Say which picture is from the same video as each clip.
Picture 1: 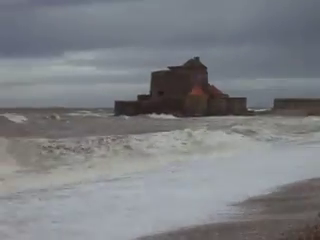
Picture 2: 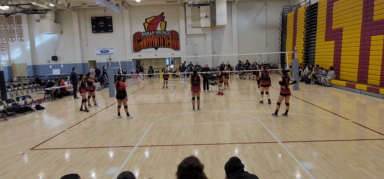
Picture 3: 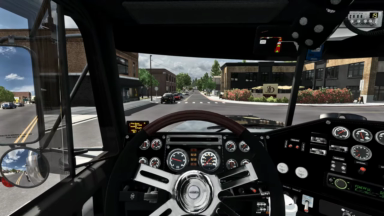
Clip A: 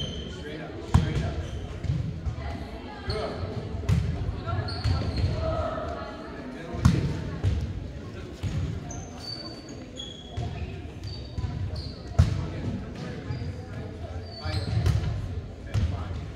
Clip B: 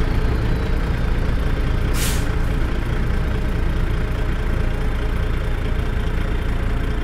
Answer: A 2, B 3